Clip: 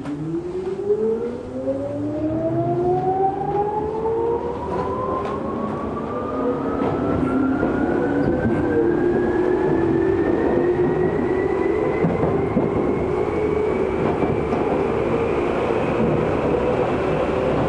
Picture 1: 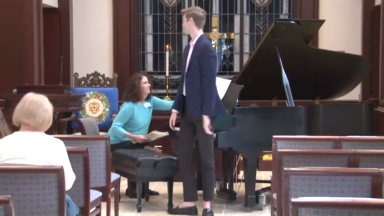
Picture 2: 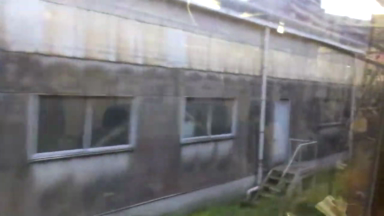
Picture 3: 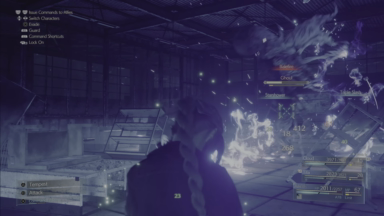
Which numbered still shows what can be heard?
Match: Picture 2